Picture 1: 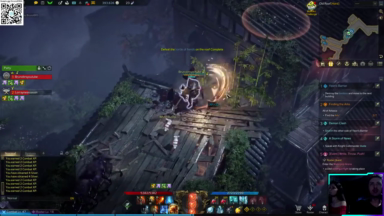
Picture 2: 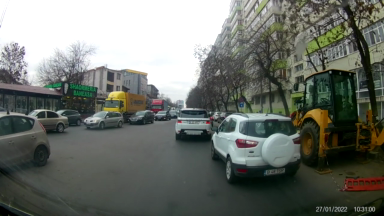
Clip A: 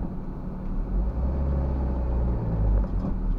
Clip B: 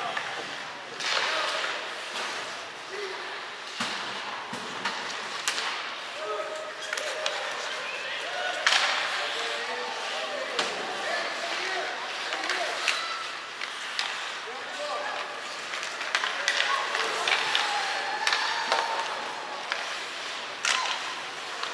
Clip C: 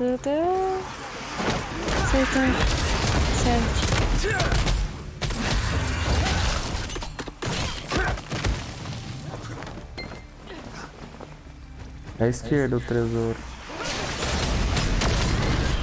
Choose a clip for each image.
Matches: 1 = C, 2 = A